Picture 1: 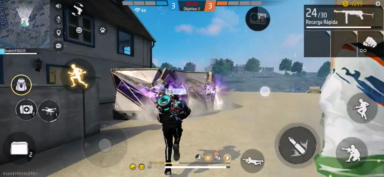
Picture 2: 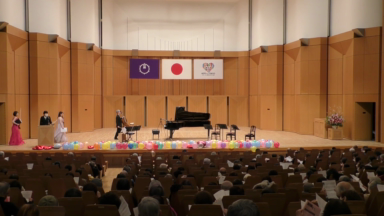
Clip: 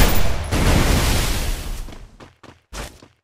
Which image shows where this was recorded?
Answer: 1